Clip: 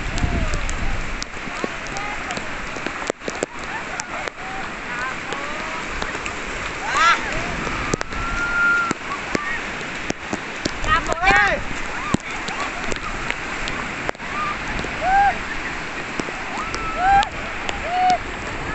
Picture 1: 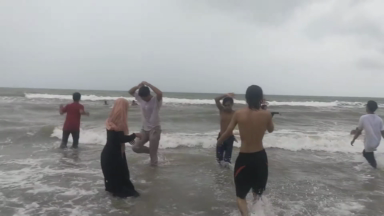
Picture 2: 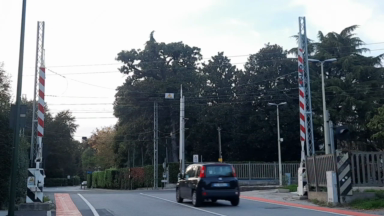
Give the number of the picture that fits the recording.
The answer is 1